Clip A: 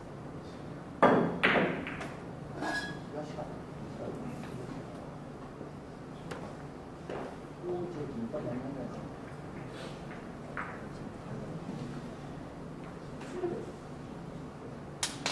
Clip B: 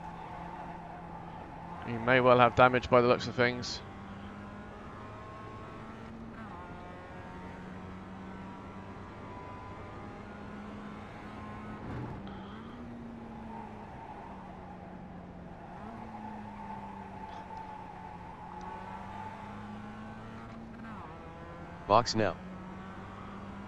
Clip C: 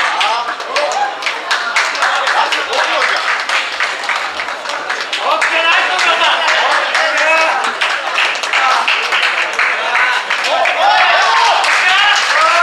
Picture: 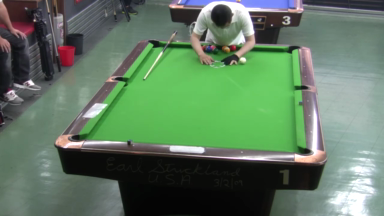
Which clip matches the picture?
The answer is A